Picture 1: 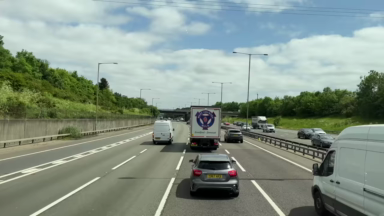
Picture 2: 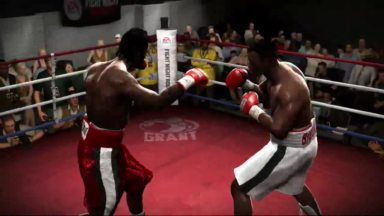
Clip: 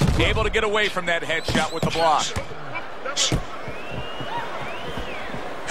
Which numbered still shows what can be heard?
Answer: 2